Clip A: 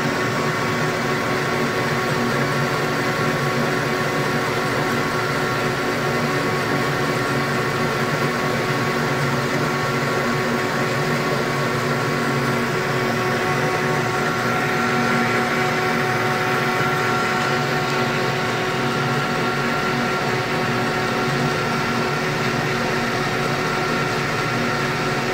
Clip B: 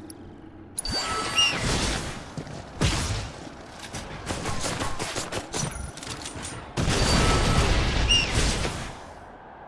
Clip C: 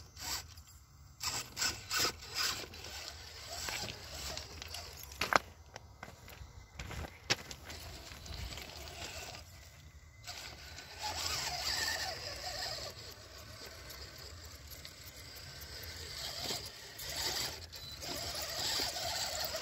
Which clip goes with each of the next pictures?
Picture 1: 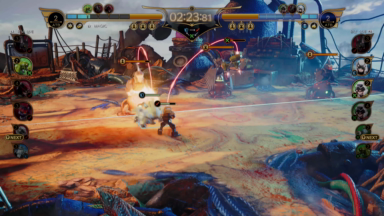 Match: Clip B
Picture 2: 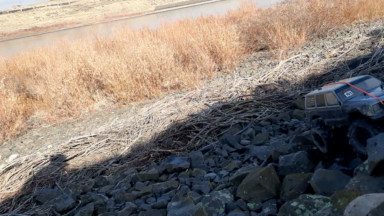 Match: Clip C